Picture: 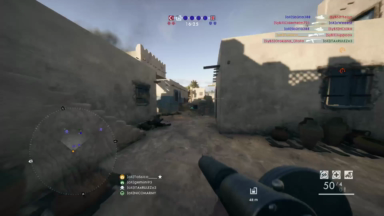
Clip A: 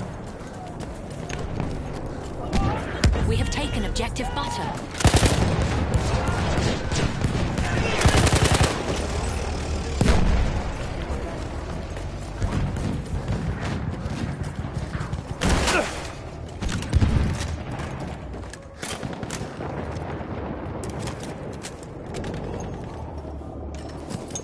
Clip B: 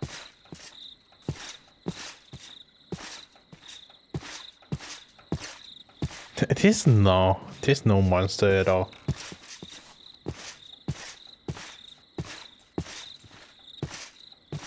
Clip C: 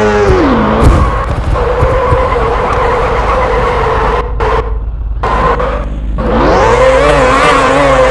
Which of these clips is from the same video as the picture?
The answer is A